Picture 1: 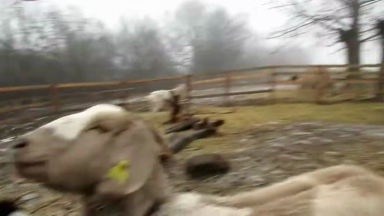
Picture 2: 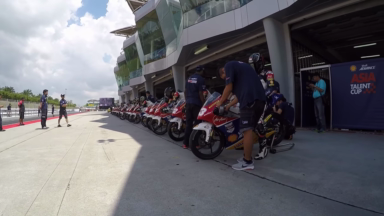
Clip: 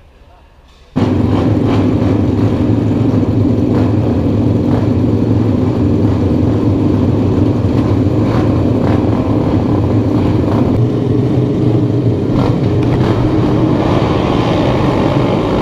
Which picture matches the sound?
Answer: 2